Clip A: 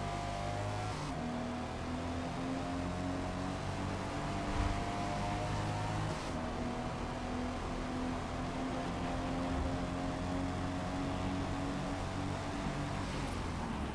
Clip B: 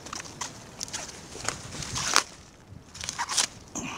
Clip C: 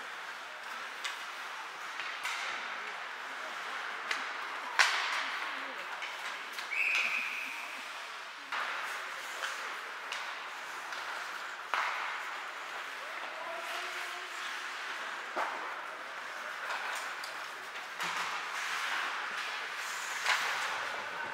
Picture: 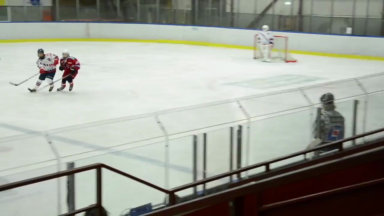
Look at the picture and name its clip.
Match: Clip C